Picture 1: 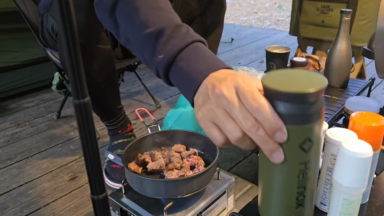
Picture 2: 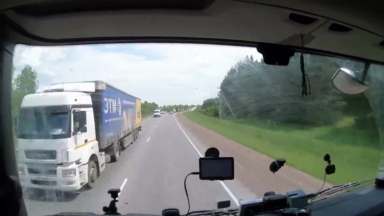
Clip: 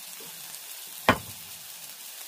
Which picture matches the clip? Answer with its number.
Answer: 1